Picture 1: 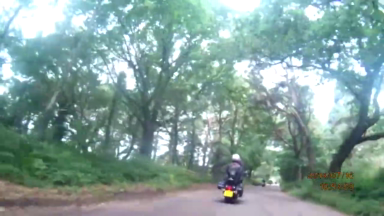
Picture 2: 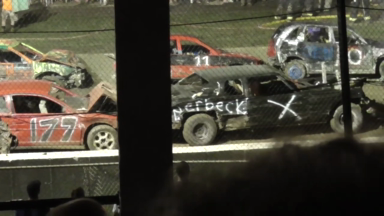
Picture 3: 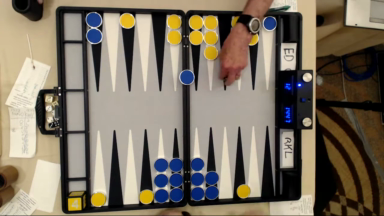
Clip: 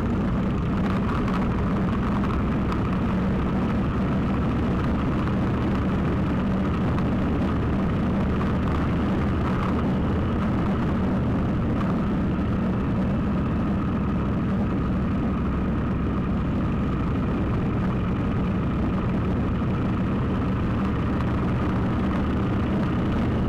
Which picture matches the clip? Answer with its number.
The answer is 1